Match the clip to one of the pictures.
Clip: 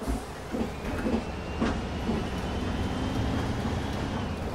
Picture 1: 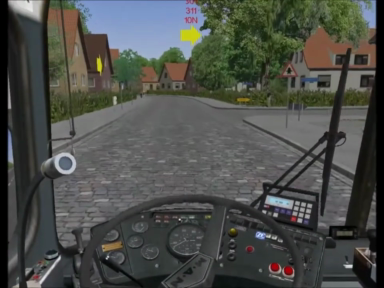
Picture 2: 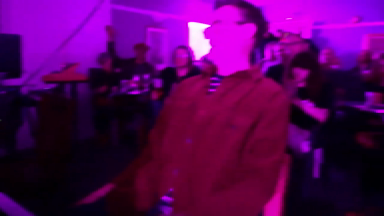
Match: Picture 1